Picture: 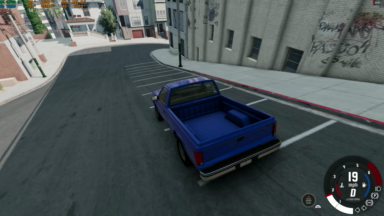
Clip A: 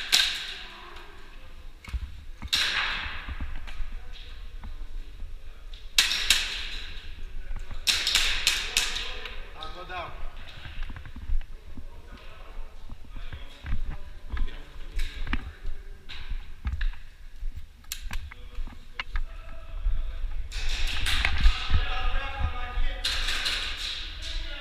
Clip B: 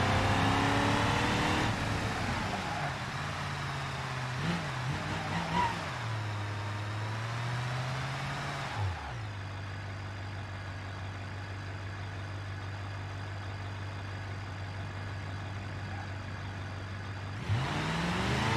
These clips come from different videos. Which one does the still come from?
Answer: B